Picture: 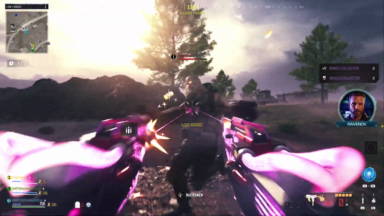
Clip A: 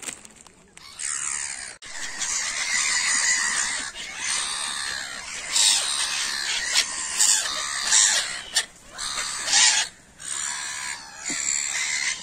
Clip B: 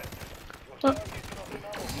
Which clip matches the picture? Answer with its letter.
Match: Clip B